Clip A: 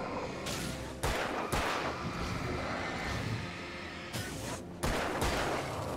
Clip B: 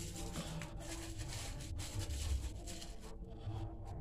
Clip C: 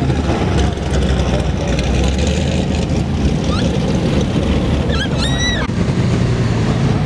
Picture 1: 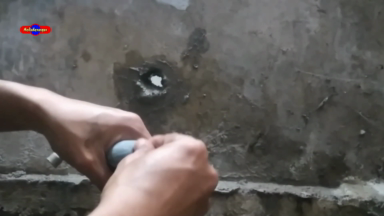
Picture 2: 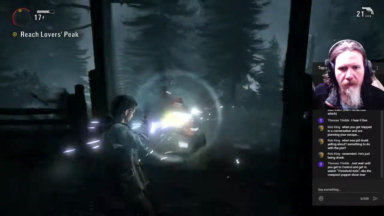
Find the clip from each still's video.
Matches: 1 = B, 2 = A